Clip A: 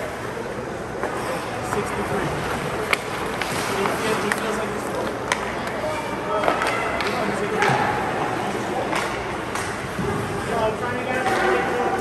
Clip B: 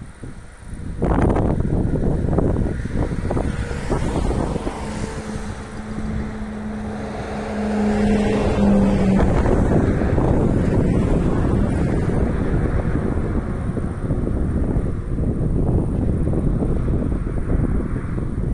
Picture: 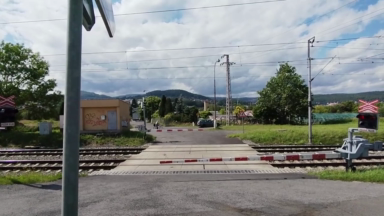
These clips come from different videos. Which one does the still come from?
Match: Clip B